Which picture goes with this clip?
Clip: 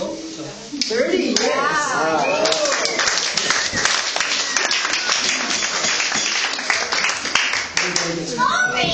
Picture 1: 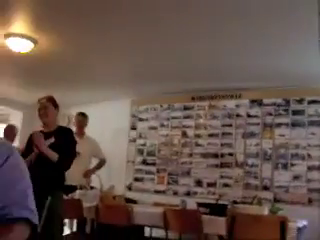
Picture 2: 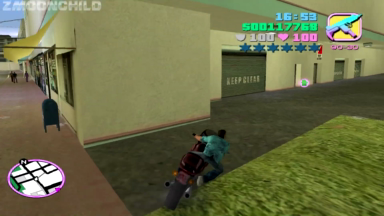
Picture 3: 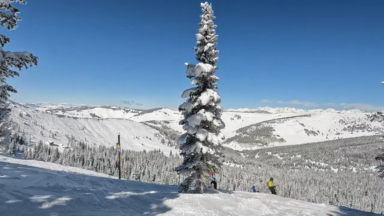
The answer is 1